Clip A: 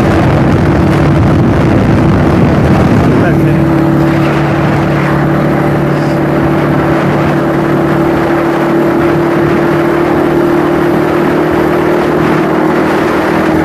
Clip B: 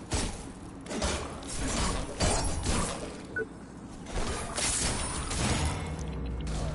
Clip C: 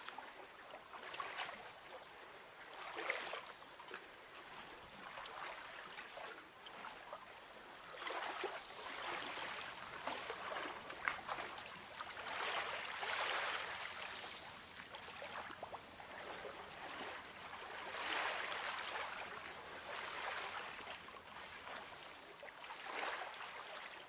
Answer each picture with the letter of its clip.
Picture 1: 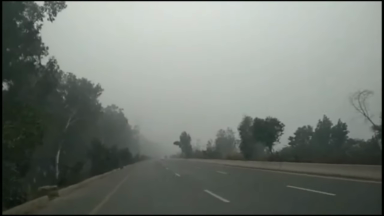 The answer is A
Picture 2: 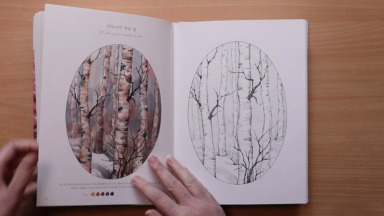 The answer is C